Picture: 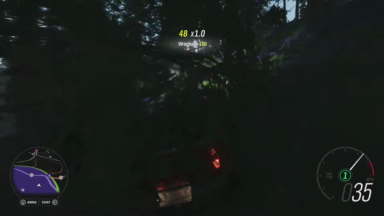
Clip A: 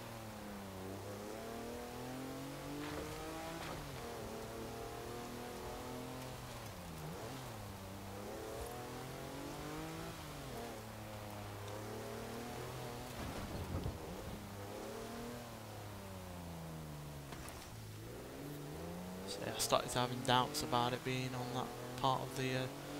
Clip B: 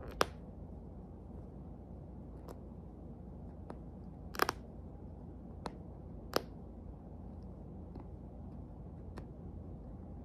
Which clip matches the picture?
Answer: A